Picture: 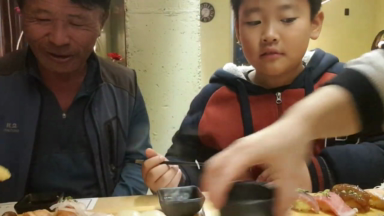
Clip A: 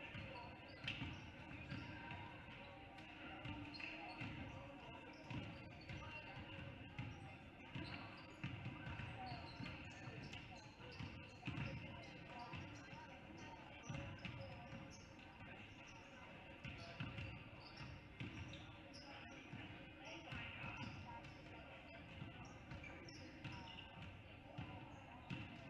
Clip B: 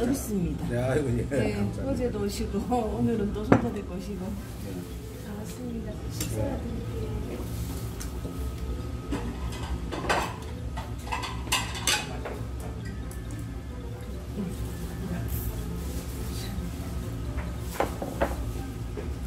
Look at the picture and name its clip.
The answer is B